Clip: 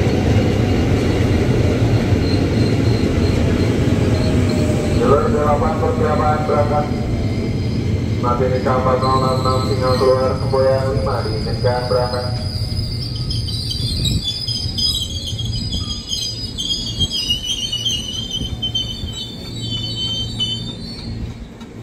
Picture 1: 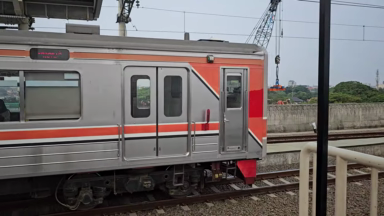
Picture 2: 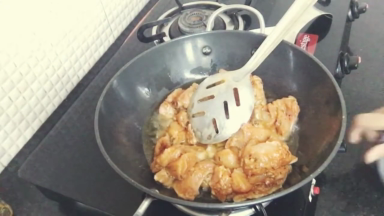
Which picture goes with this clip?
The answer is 1